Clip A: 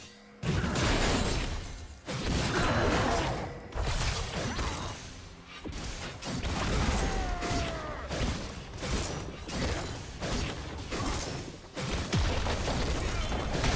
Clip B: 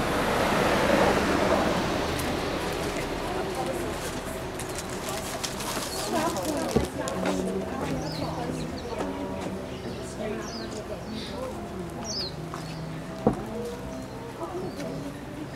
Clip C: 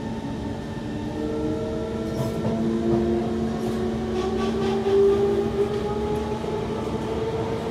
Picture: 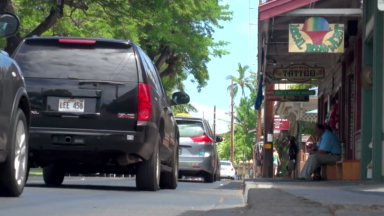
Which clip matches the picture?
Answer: B